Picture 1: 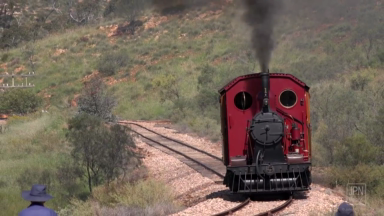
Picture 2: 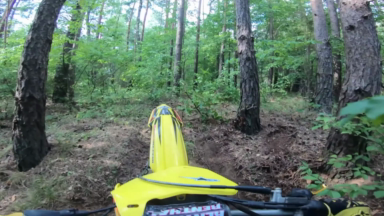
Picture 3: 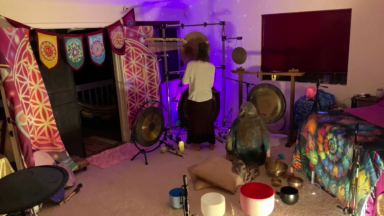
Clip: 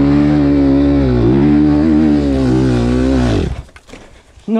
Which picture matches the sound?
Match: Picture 2